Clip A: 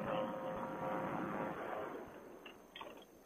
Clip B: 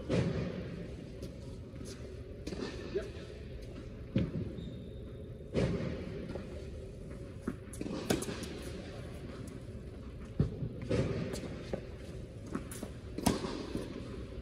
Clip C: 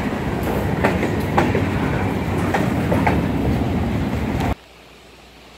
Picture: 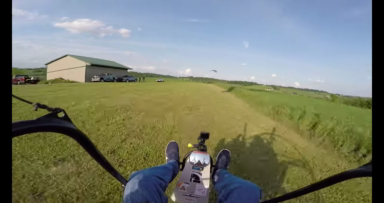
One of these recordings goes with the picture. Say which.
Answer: A